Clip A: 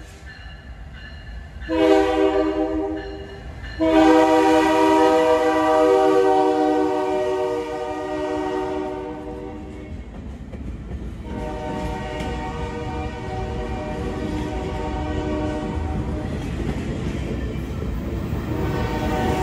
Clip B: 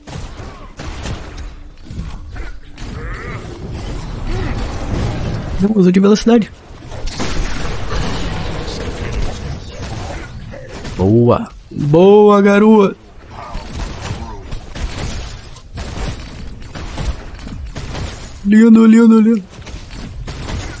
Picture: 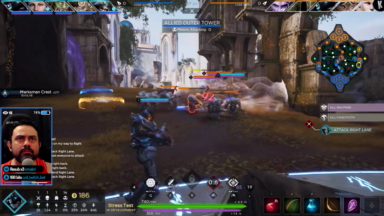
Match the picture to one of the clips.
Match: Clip B